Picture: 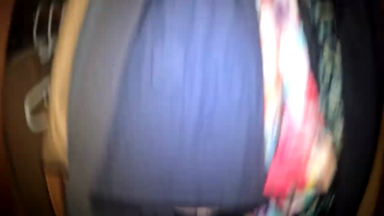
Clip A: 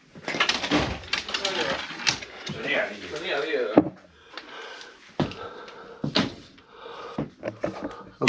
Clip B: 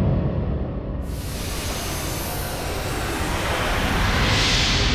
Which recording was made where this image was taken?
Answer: A